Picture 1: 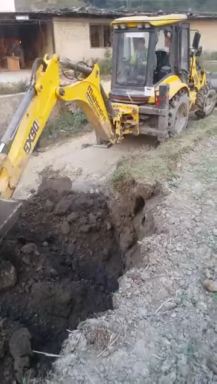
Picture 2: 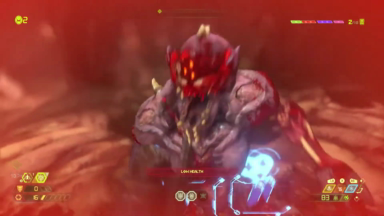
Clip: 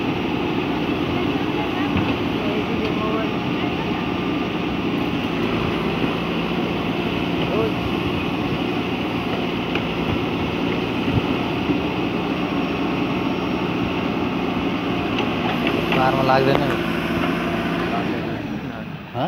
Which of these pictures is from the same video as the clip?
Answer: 1